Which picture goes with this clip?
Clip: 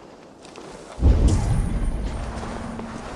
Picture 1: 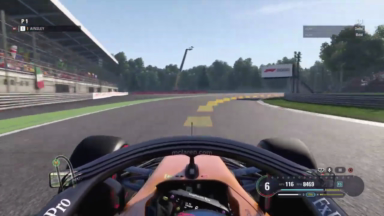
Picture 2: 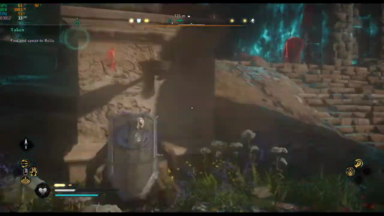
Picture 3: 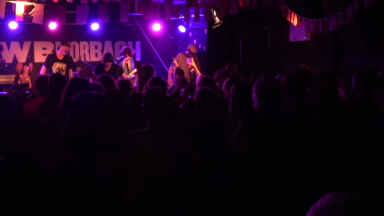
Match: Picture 2